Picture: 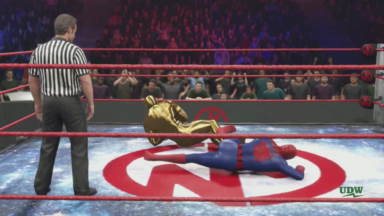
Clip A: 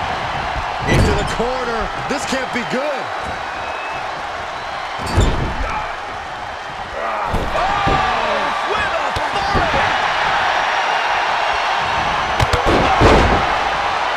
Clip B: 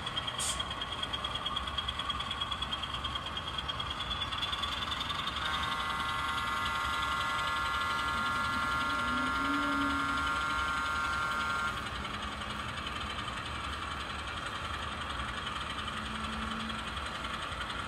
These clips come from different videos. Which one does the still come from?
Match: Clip A